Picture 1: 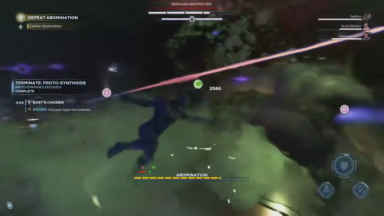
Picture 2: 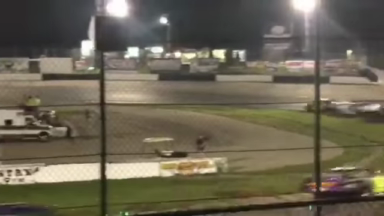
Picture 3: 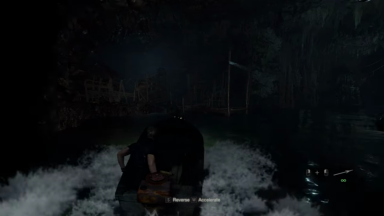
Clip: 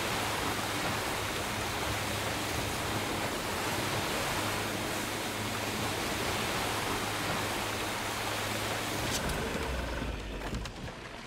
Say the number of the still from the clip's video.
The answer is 3